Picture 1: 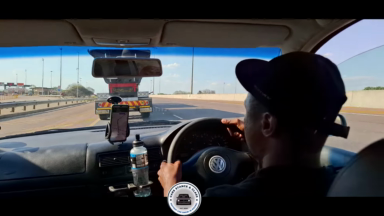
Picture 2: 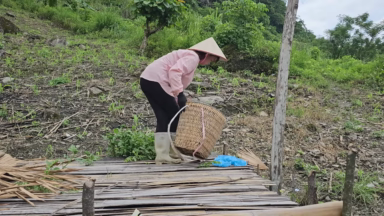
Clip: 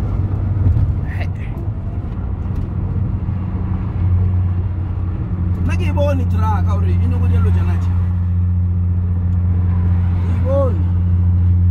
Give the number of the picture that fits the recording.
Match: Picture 1